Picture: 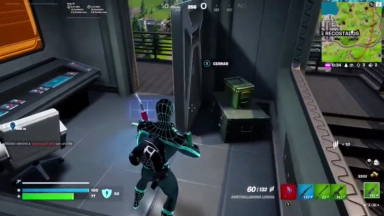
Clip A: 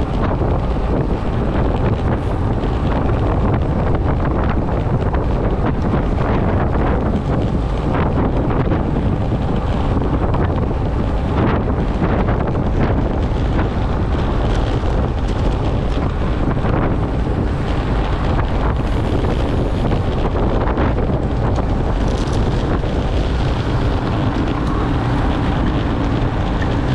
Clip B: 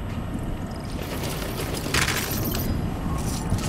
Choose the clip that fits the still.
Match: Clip B